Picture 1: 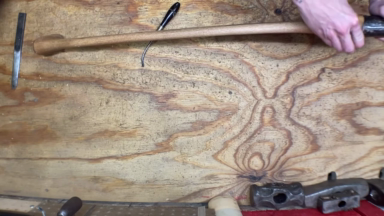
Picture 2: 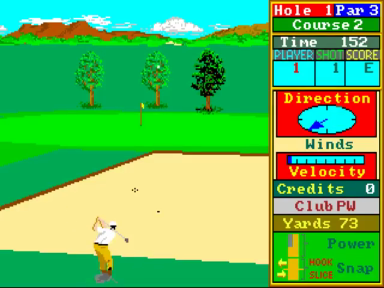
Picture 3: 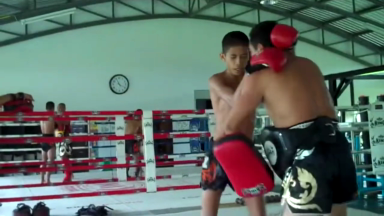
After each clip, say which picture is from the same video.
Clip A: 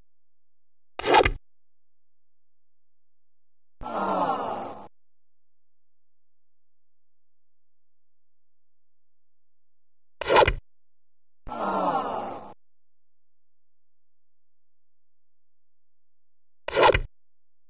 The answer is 2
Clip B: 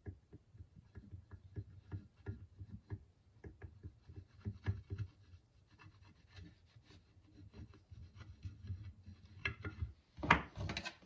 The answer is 1